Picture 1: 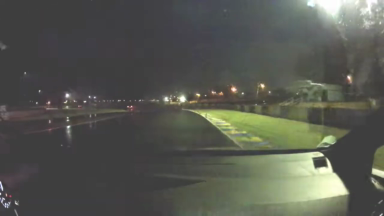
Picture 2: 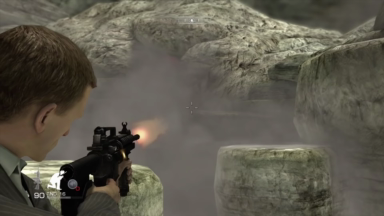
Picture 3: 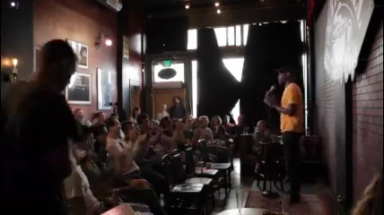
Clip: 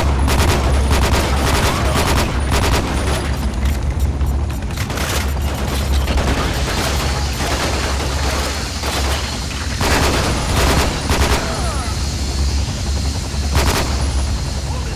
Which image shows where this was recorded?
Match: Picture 2